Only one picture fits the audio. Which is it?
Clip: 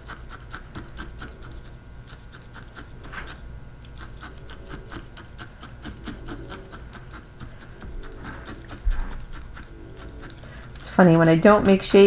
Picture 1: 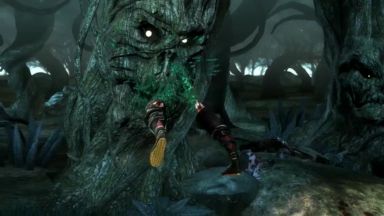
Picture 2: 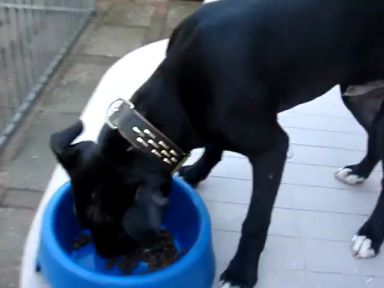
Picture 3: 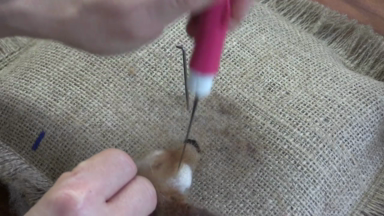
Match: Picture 3